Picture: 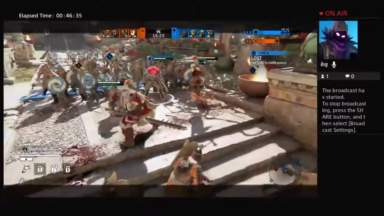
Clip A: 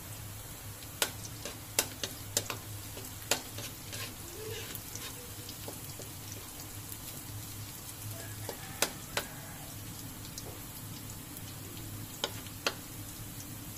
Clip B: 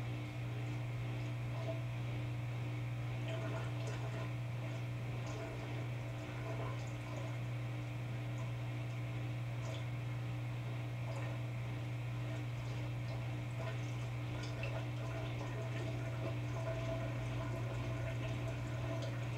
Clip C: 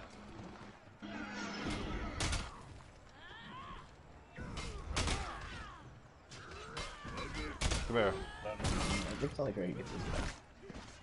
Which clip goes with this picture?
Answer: C